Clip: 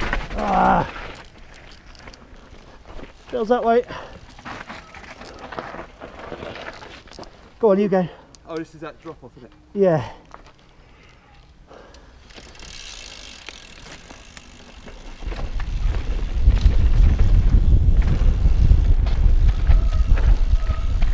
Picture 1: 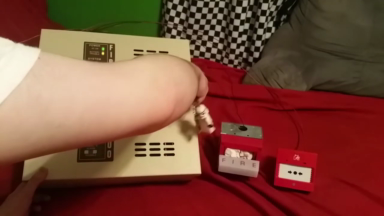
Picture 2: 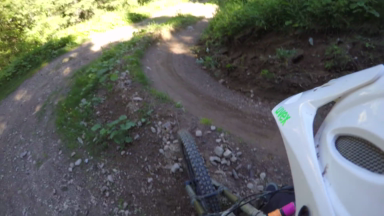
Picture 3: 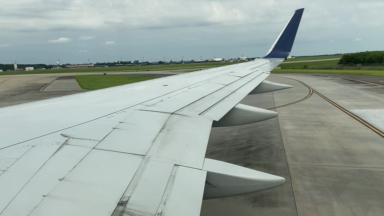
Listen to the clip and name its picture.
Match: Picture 2